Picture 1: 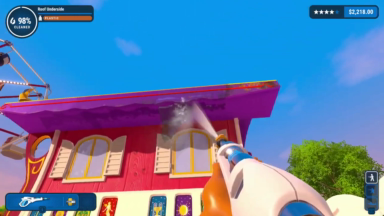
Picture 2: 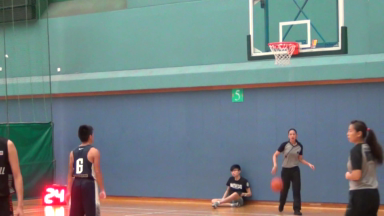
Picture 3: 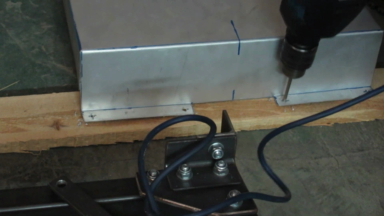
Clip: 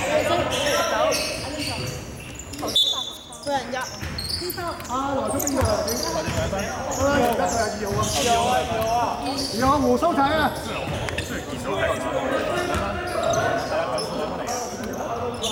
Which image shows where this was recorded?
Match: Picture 2